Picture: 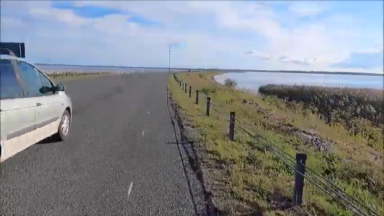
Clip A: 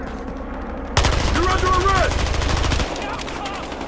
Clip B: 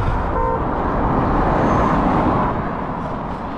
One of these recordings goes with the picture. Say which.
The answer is B